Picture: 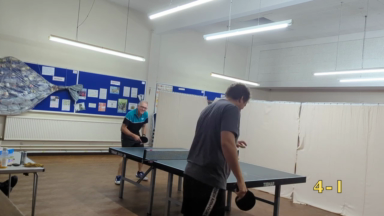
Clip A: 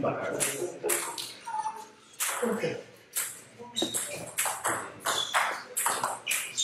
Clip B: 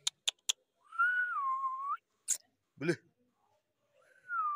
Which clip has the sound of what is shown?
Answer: A